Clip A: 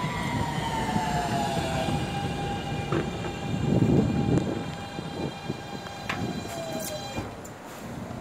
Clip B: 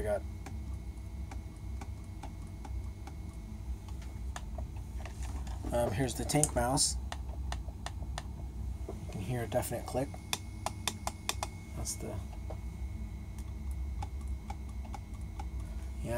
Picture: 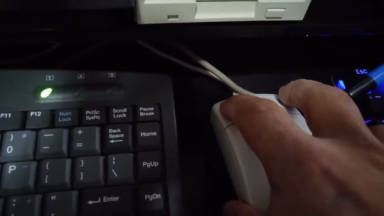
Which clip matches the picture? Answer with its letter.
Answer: B